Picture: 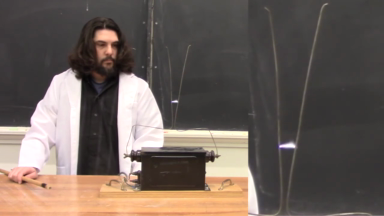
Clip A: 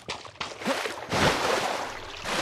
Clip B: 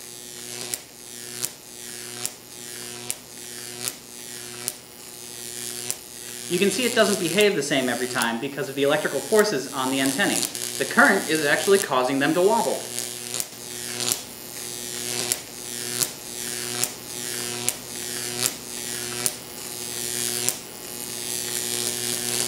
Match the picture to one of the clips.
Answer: B